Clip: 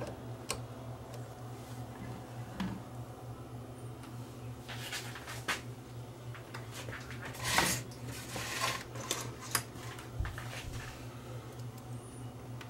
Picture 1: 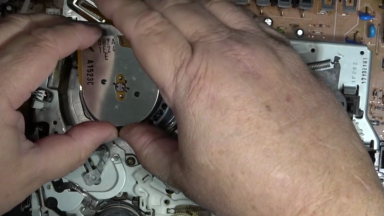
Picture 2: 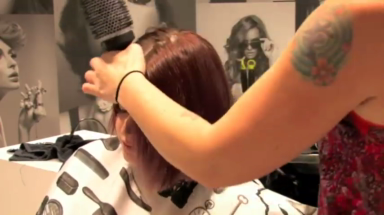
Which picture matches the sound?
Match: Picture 1